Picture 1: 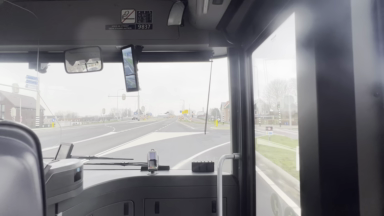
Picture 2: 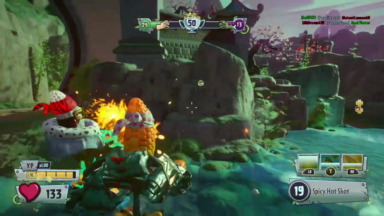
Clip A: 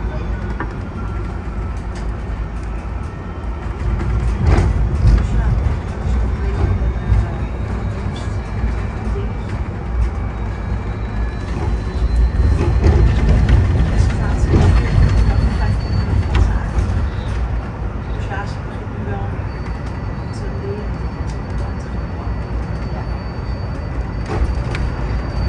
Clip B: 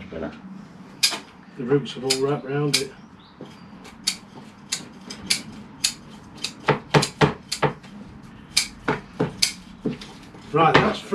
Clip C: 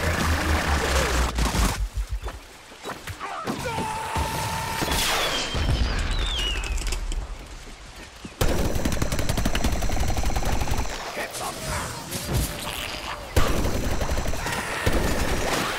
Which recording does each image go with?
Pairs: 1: A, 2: C